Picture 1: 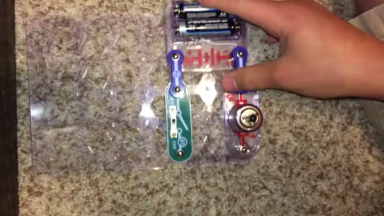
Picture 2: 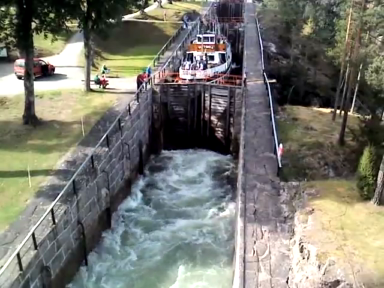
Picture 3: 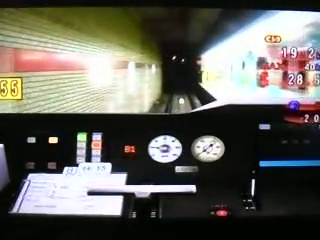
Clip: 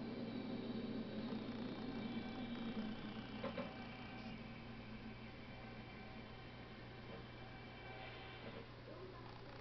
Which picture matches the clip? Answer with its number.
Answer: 3